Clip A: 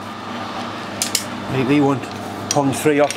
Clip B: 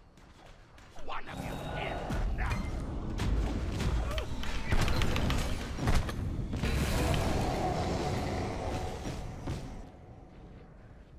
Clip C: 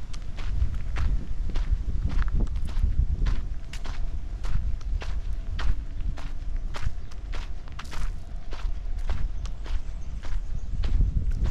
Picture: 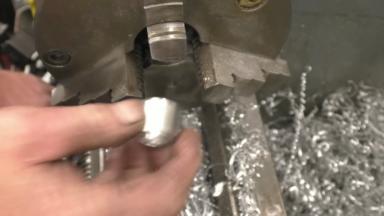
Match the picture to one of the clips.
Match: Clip A